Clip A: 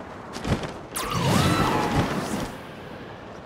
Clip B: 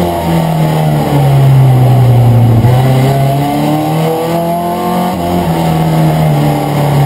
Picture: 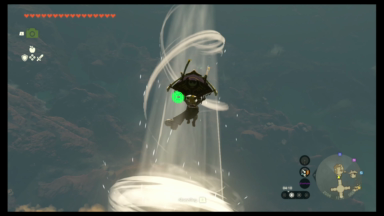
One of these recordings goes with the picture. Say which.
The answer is A